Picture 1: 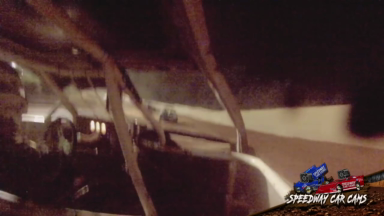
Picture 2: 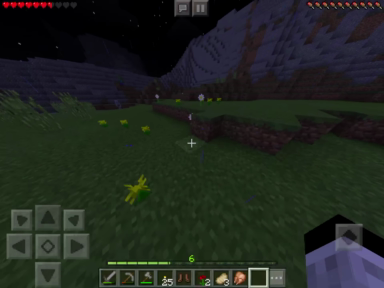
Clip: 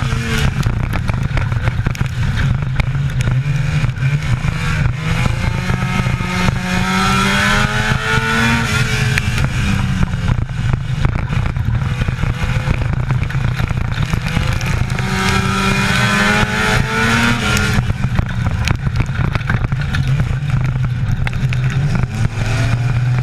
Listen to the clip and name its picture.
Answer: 1